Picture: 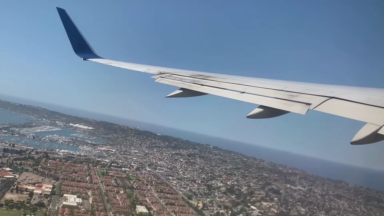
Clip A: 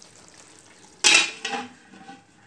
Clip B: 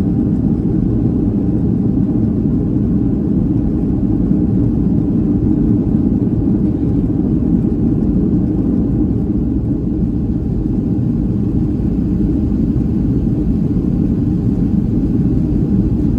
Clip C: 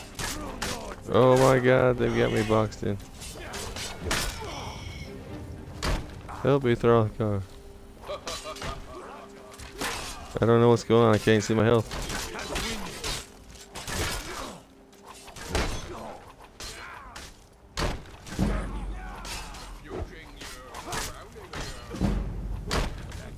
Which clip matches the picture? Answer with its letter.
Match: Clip B